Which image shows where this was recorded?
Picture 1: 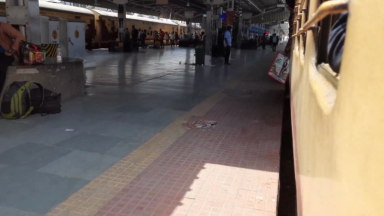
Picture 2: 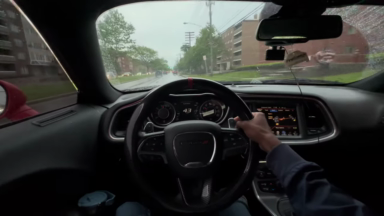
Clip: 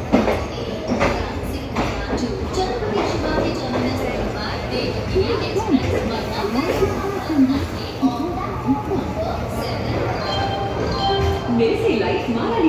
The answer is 1